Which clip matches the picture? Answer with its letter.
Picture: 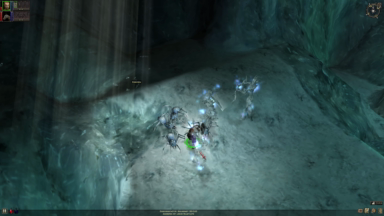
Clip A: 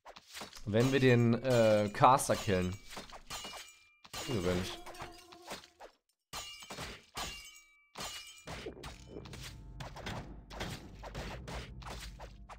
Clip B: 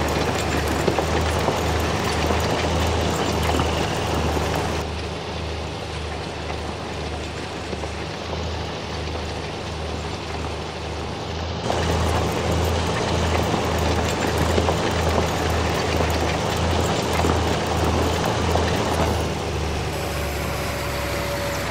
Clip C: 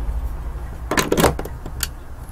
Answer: A